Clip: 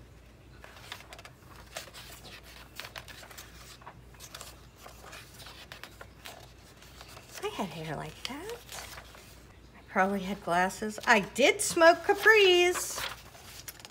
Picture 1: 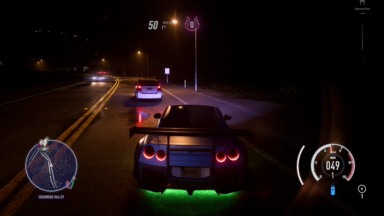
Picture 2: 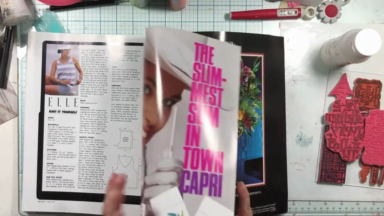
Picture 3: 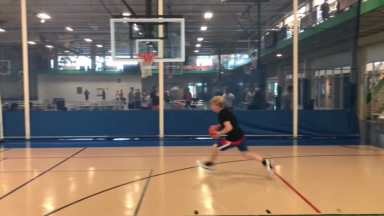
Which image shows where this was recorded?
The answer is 2